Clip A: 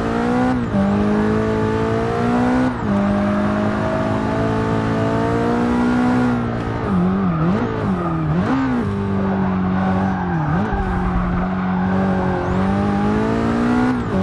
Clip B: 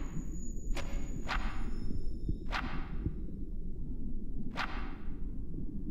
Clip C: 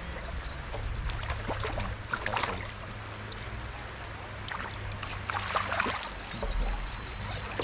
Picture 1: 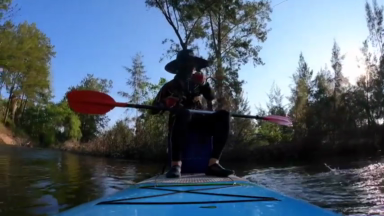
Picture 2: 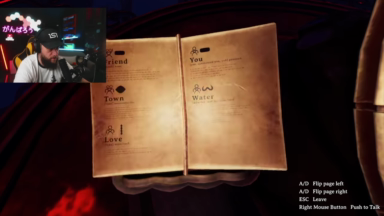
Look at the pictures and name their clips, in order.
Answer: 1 C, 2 B